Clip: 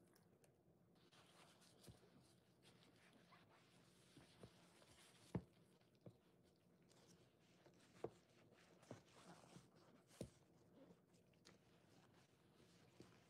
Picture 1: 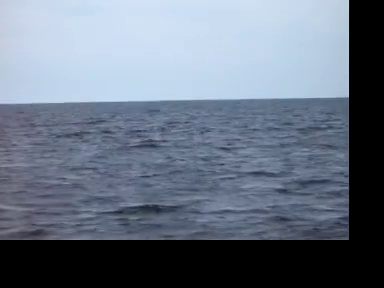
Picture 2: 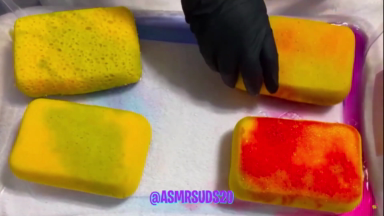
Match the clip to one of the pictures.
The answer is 2